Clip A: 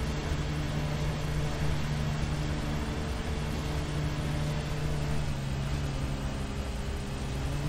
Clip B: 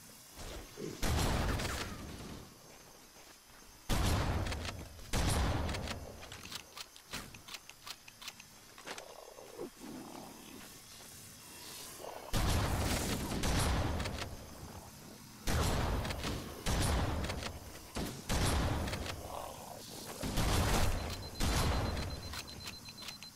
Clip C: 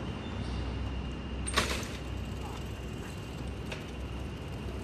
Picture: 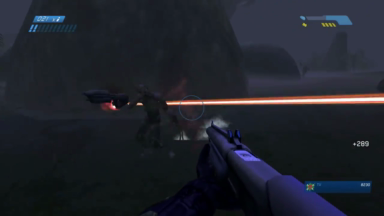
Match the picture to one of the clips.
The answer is B